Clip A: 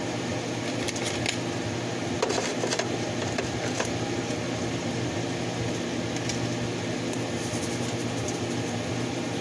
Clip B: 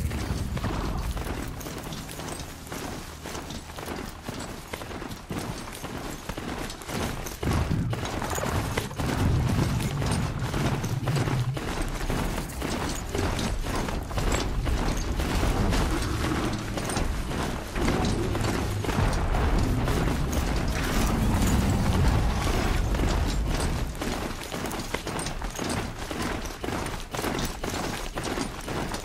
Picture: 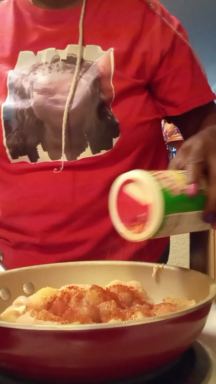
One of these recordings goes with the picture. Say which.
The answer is A